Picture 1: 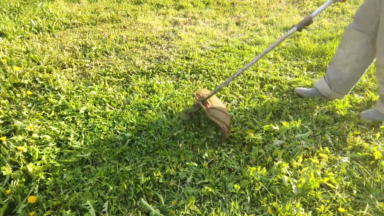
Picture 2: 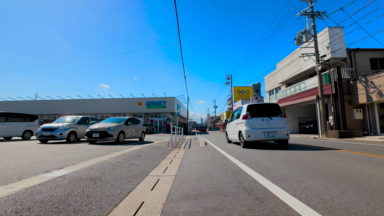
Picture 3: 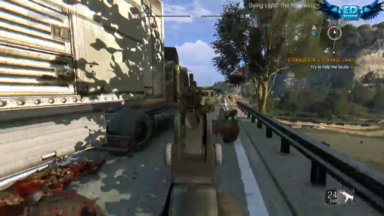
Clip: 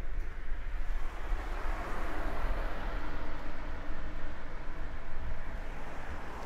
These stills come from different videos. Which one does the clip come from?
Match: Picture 2